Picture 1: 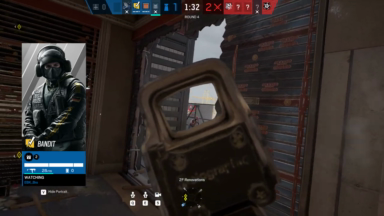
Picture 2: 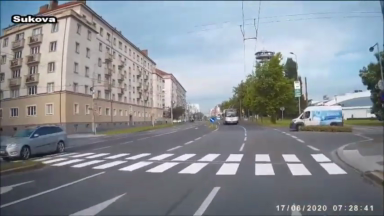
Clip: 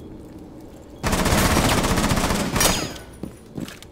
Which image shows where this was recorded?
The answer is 1